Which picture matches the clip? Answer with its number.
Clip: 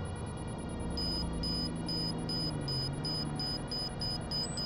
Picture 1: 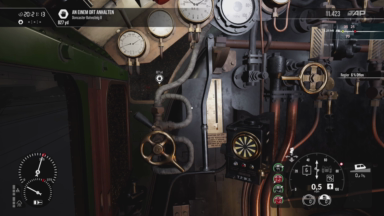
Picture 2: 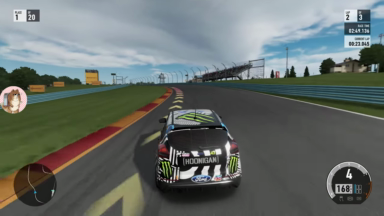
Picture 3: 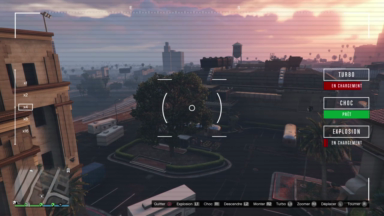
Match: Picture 3